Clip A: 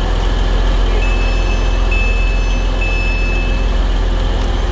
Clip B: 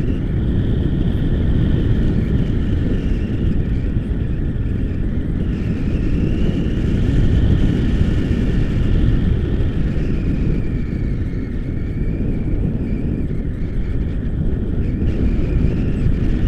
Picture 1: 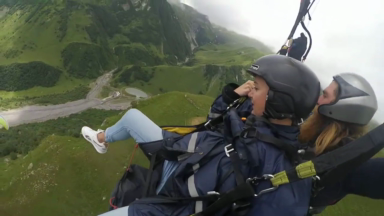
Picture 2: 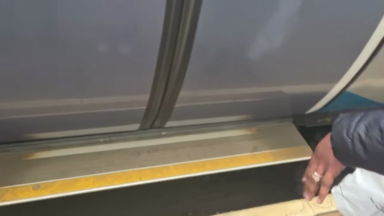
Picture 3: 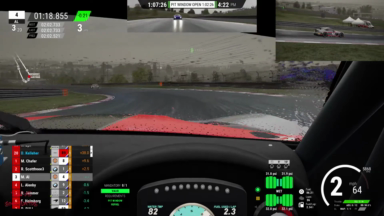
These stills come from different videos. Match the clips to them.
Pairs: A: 2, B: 1